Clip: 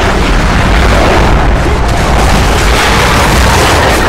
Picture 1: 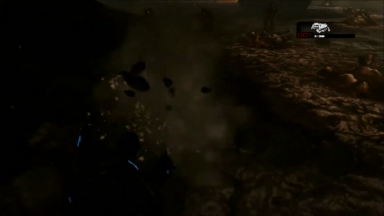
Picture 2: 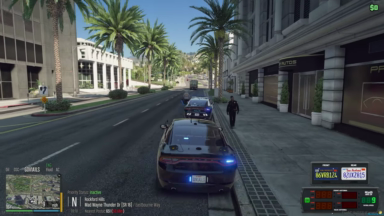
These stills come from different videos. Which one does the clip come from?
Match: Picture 1